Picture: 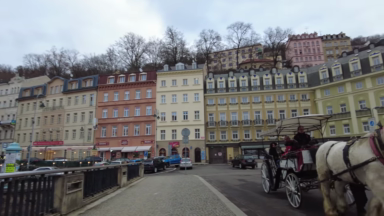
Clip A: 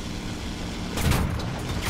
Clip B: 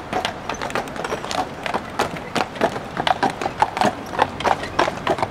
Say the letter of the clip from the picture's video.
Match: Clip B